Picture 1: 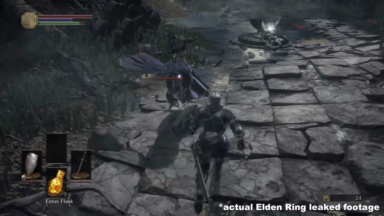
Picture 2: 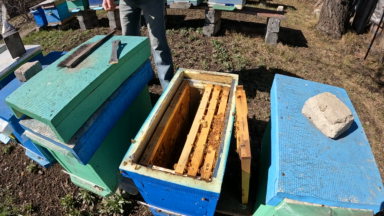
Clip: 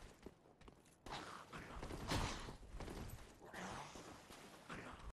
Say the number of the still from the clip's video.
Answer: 1